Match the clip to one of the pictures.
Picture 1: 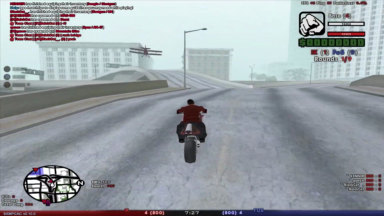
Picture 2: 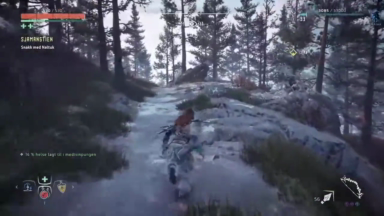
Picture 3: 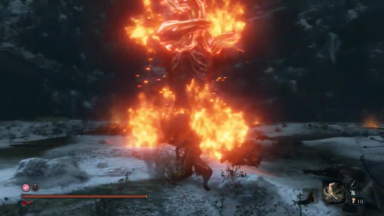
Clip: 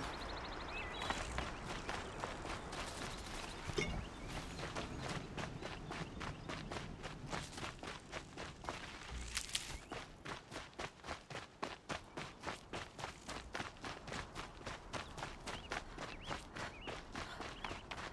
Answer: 2